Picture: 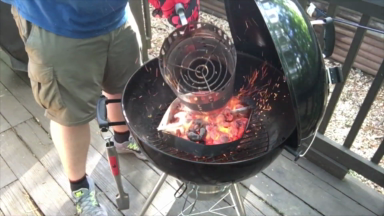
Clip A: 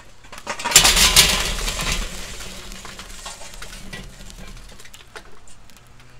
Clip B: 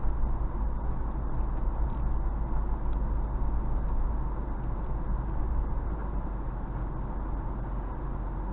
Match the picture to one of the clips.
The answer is A